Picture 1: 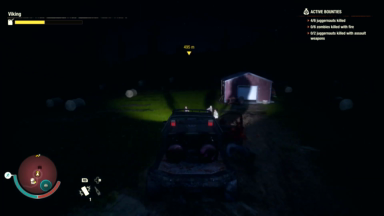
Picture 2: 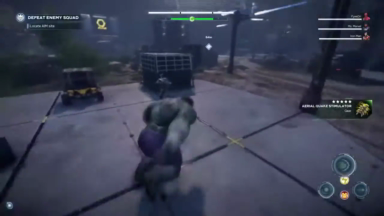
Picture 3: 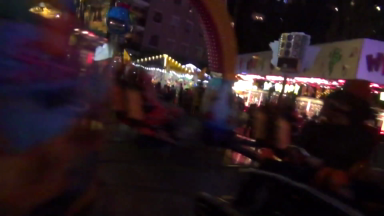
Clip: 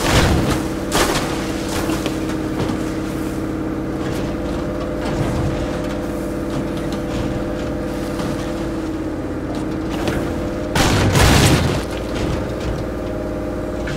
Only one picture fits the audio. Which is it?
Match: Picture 1